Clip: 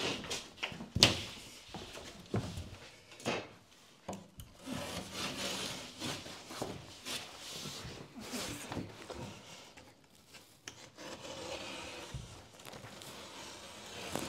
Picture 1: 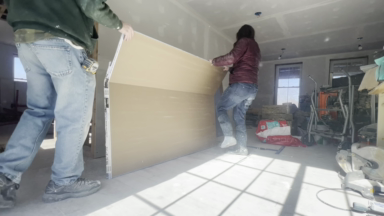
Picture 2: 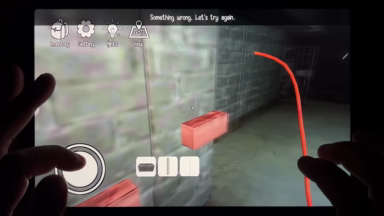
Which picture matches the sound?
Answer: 1